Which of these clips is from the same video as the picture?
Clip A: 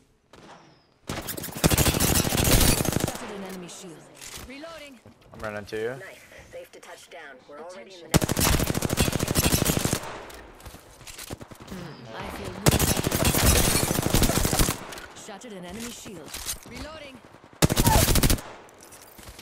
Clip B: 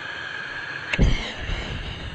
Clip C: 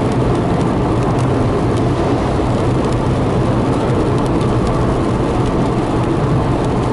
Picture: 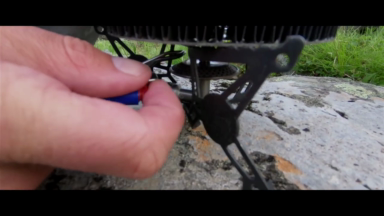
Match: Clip B